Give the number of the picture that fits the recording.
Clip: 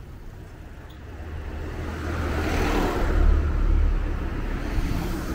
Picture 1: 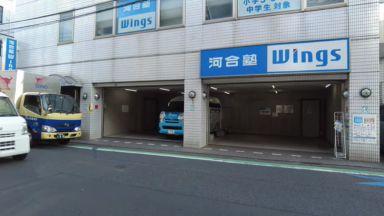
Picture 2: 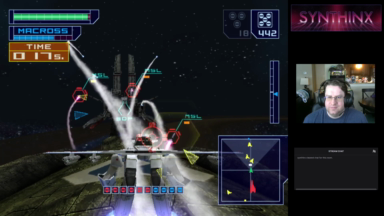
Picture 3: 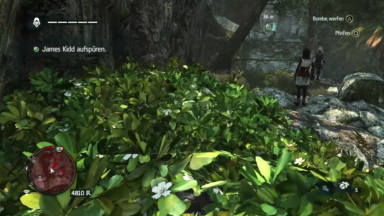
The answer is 1